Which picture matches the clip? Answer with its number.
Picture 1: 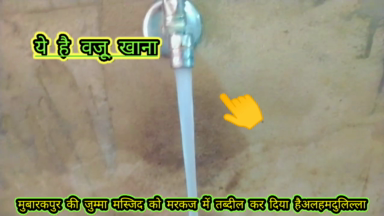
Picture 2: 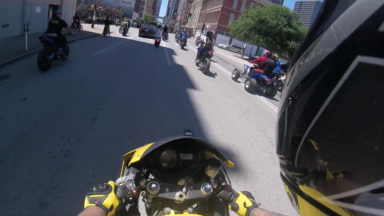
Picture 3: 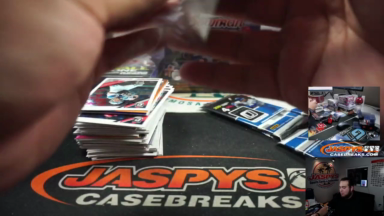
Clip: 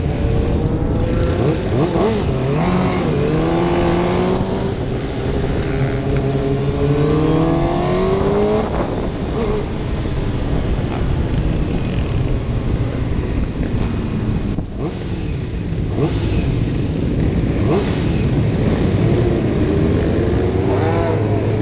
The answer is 2